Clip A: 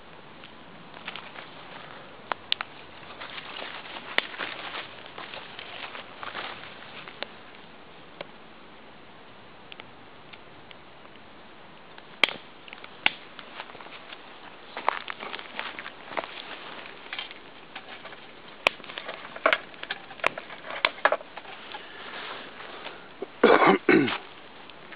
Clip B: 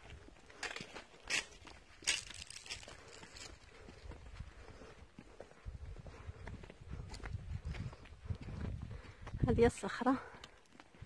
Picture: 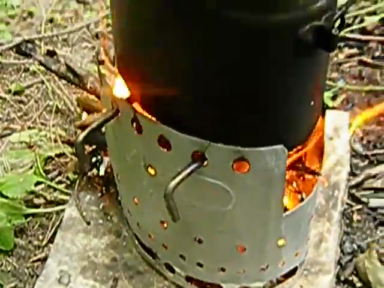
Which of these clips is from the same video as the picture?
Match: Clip A